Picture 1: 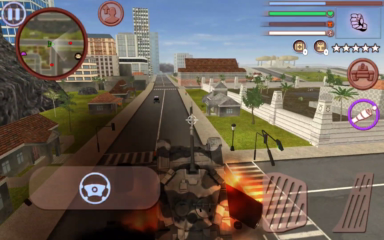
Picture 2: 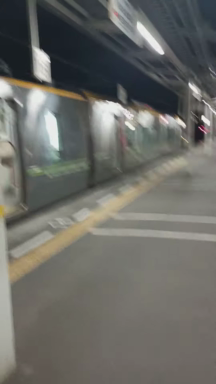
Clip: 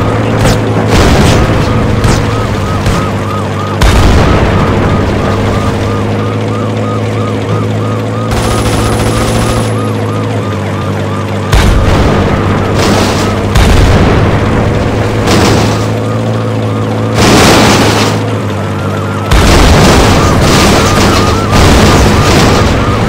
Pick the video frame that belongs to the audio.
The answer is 1